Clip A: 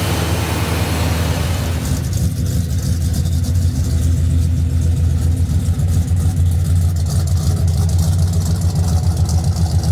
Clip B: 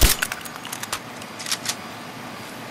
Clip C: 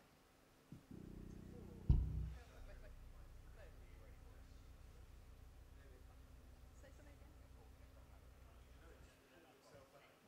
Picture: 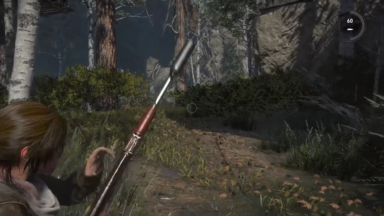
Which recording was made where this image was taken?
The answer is B